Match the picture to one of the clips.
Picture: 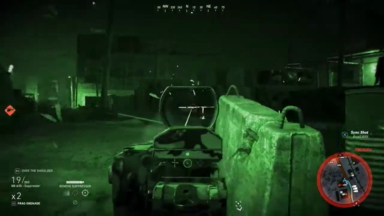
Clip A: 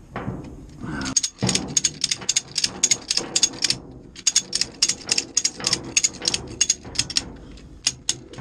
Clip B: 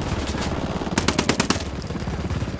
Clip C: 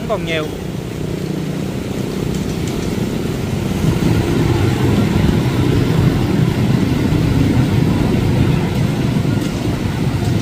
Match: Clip B